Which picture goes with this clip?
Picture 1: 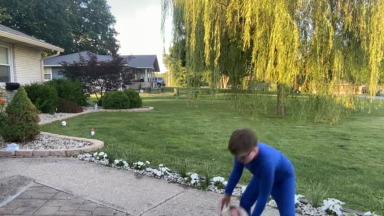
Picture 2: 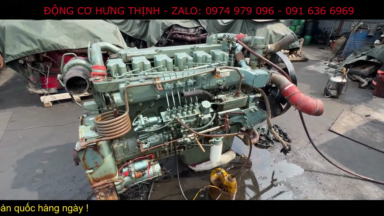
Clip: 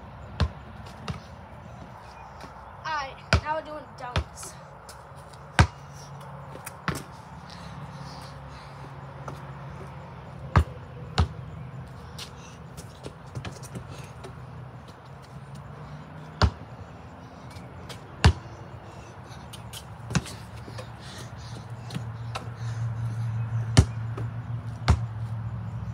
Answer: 1